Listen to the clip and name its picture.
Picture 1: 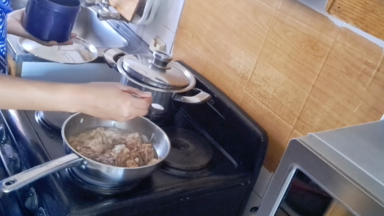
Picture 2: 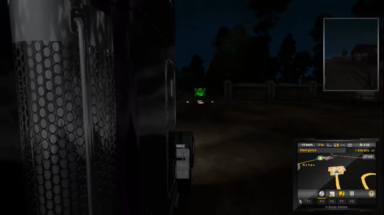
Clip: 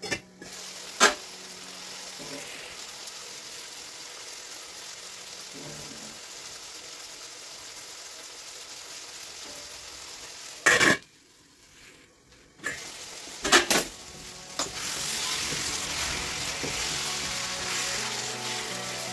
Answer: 1